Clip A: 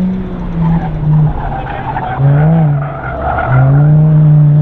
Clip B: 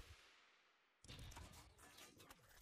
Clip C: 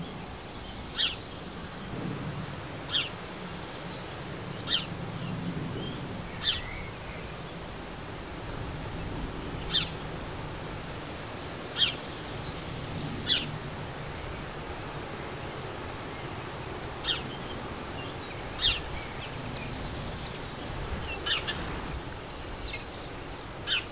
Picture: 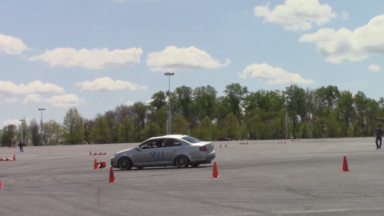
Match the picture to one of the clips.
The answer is A